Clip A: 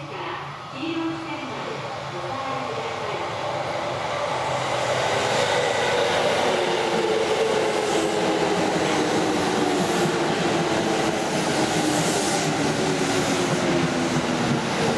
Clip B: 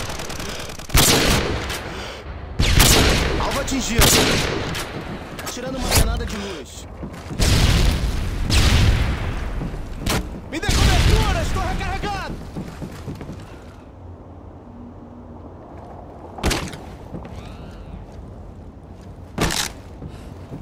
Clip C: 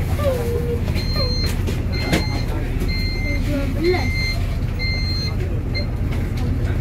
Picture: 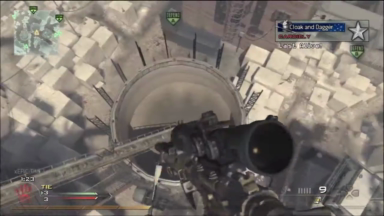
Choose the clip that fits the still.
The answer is B